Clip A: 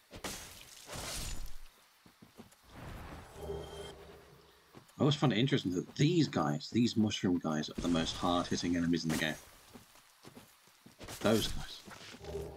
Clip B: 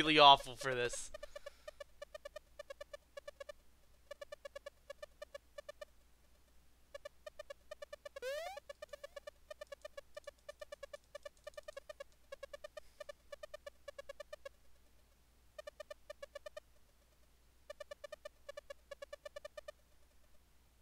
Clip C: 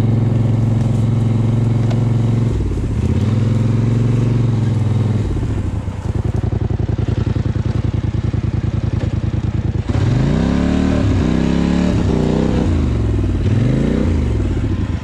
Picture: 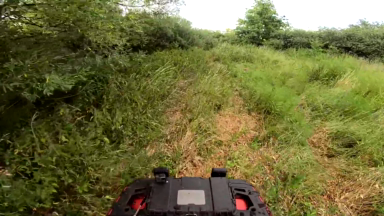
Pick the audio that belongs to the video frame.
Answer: C